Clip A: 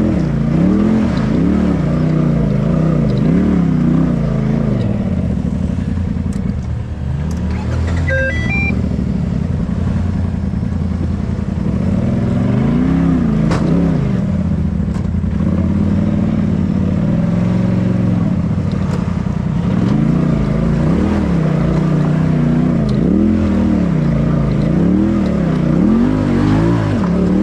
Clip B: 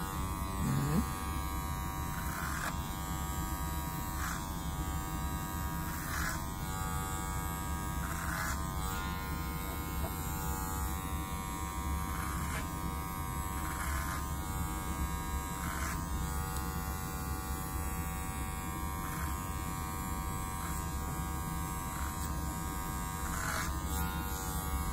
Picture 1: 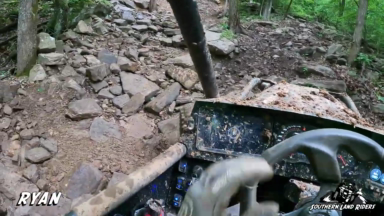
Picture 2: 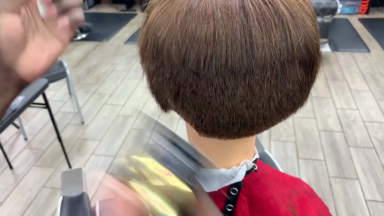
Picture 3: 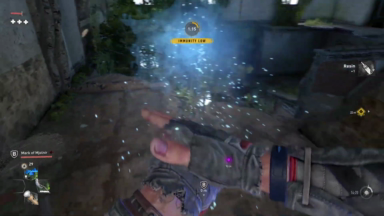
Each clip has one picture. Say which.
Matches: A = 1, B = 2